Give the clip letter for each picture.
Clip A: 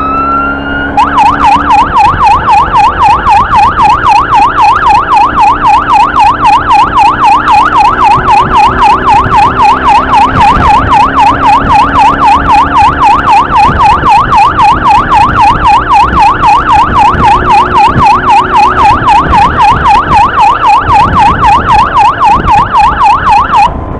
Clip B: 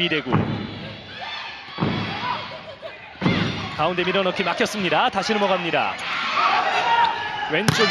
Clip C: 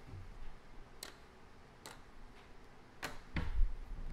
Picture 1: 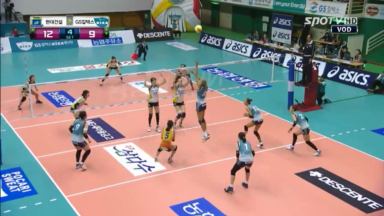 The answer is B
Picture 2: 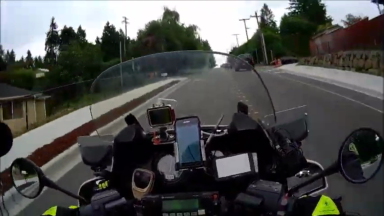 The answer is A